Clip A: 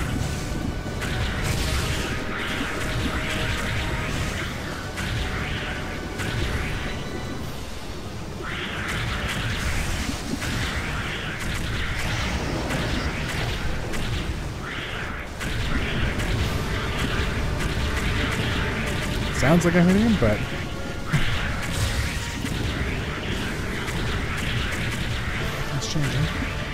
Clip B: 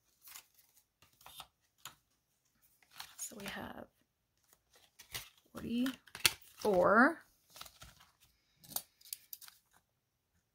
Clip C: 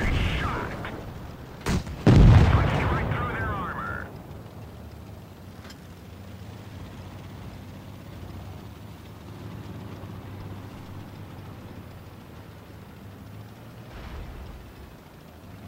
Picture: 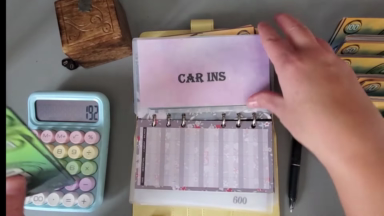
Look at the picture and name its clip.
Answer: B